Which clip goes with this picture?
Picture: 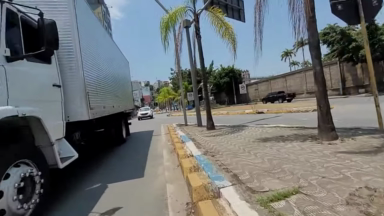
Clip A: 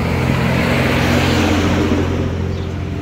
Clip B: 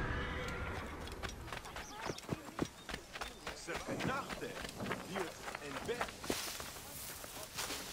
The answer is A